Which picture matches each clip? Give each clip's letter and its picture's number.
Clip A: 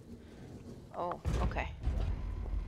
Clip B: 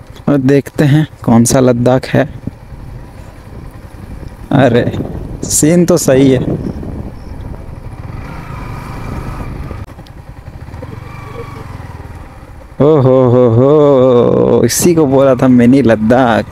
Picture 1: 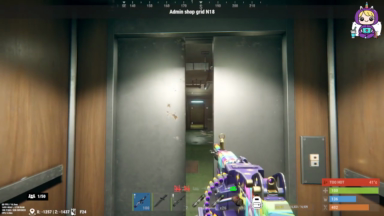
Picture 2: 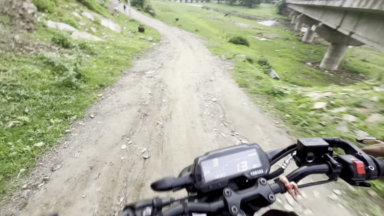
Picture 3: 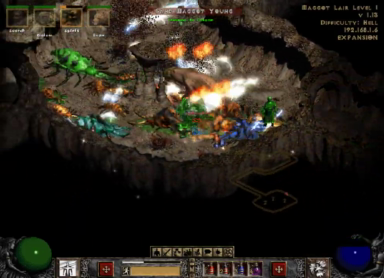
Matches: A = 1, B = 2